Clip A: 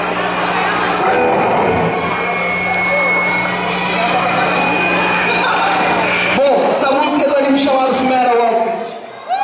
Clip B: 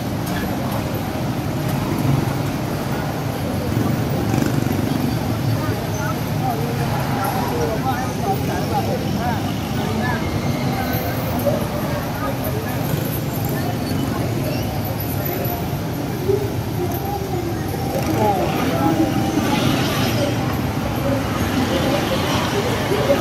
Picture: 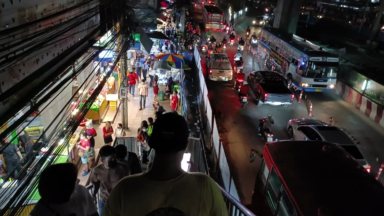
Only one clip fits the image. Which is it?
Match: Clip B